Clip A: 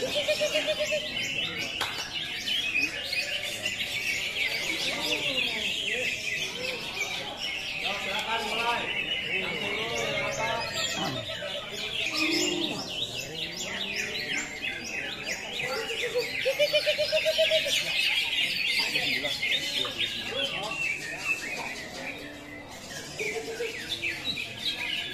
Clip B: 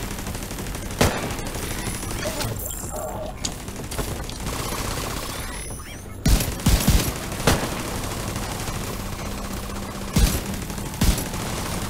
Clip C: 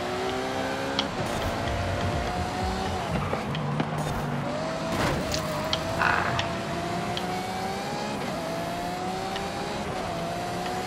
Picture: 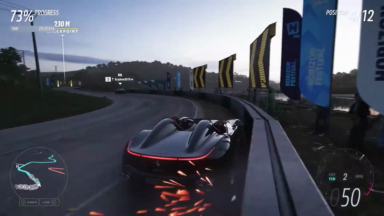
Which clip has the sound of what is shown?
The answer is C